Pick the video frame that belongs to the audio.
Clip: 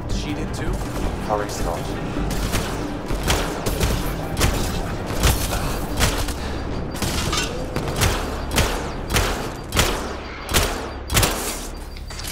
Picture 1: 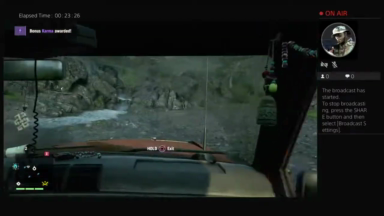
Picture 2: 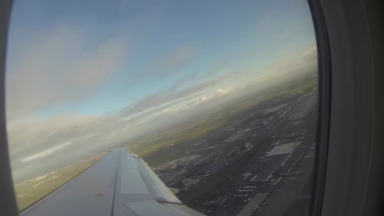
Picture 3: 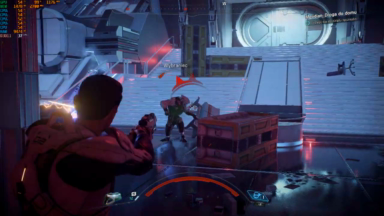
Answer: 3